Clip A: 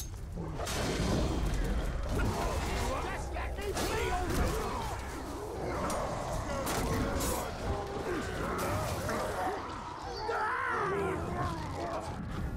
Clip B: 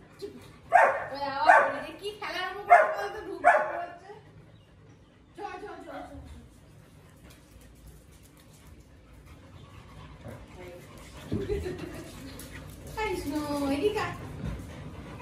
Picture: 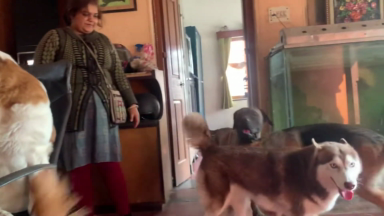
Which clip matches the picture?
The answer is B